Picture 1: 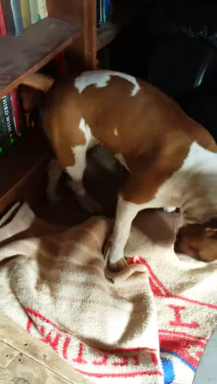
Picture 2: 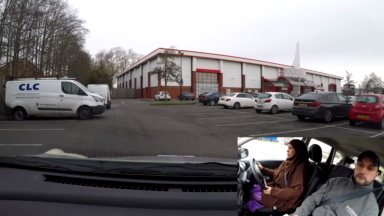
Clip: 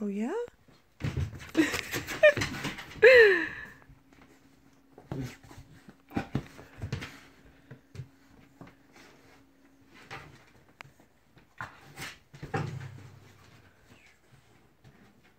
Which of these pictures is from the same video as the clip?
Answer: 1